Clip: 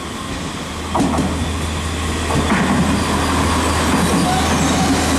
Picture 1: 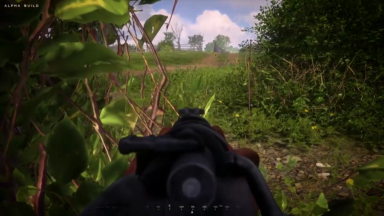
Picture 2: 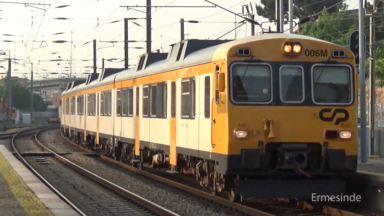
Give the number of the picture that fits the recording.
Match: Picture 2